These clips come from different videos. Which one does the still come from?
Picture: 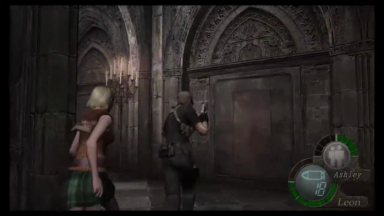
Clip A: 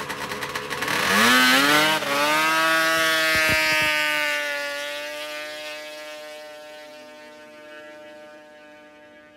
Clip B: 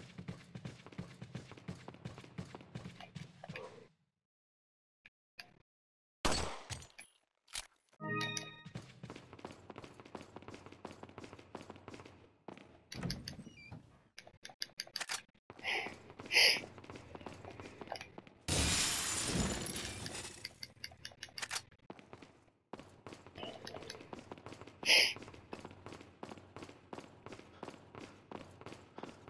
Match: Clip B